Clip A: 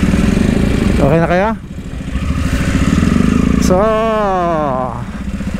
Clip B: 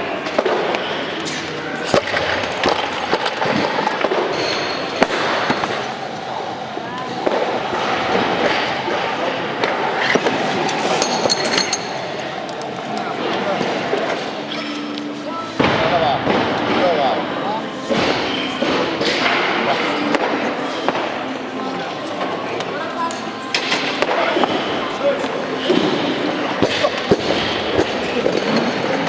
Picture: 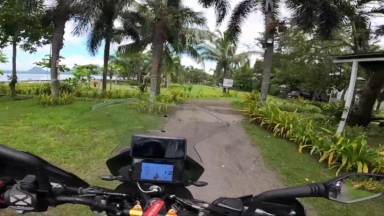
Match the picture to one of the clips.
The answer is A